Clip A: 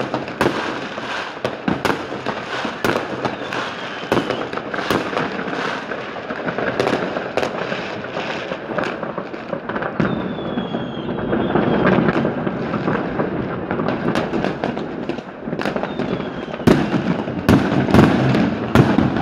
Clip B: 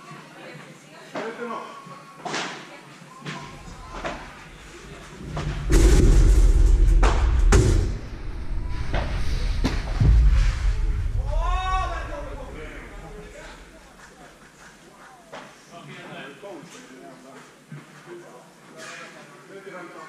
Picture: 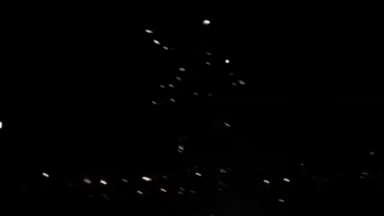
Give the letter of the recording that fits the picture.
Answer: A